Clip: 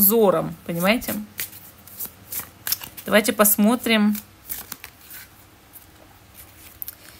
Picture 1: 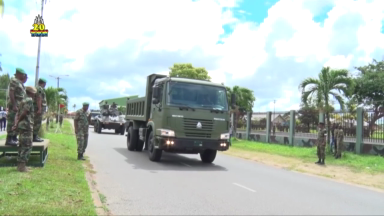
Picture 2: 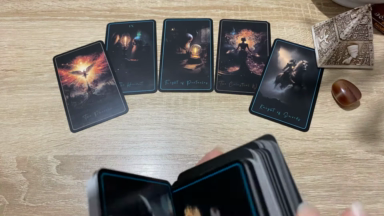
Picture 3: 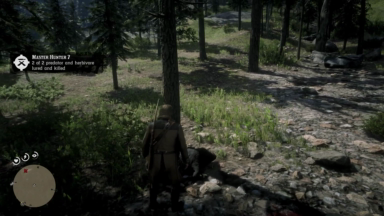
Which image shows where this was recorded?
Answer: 2